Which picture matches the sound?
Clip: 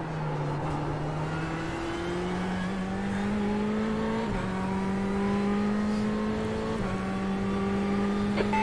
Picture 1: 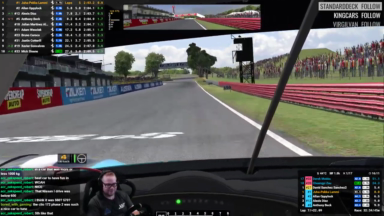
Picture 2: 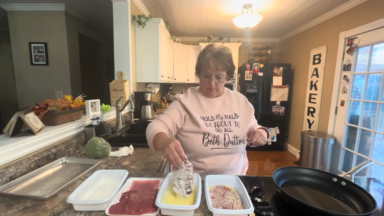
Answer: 1